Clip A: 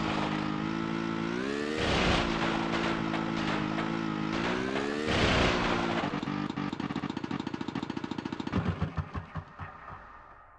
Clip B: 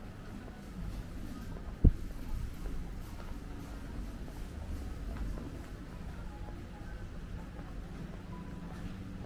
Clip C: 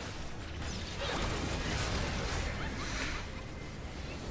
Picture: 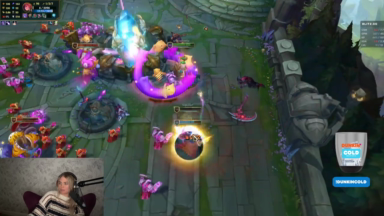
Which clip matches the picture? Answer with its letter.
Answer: C